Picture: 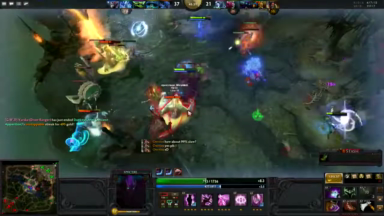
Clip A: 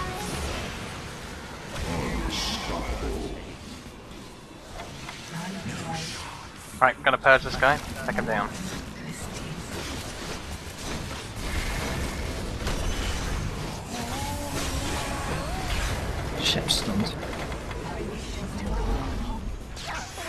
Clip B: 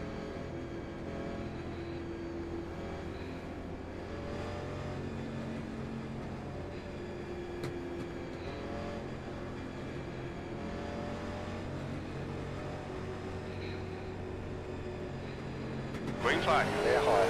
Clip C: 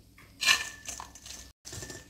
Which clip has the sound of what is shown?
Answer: A